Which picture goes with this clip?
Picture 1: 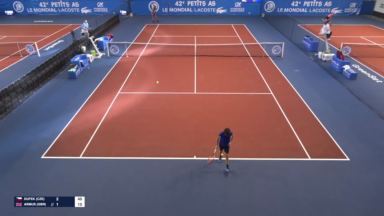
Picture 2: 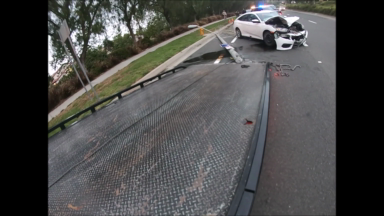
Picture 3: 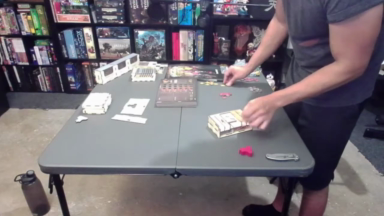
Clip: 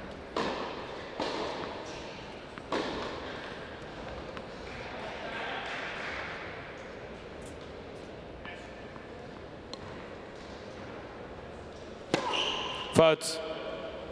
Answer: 1